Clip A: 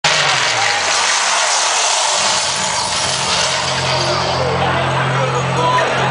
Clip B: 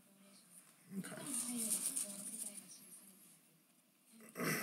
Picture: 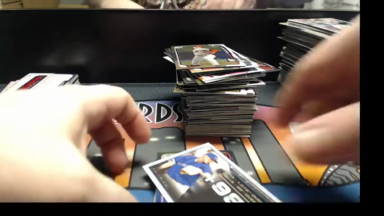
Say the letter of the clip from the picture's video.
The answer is B